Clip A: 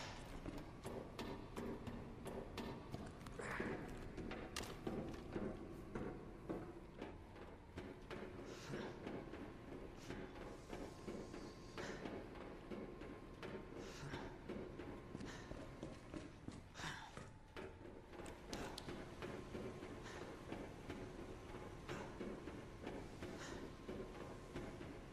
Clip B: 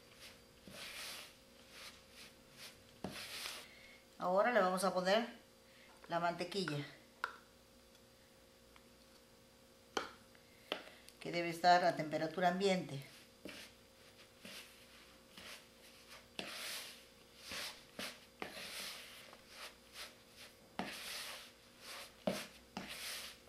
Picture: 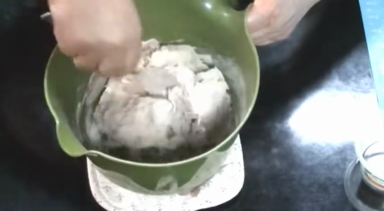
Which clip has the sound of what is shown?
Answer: B